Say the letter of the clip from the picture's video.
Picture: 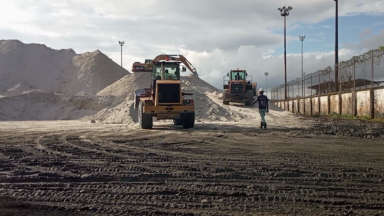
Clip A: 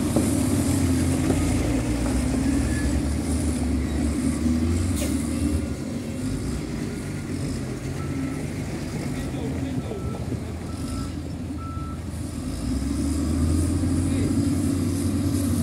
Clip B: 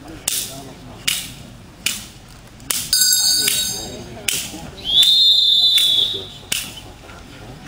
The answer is A